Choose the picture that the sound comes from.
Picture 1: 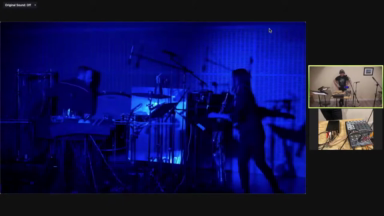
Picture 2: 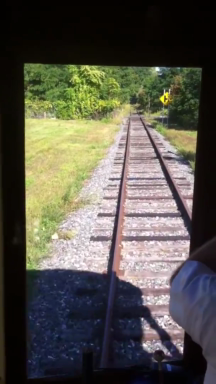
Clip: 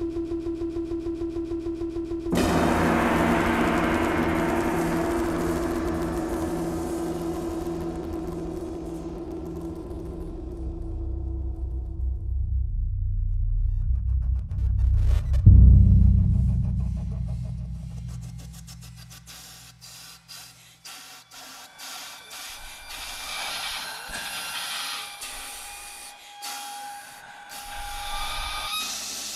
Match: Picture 1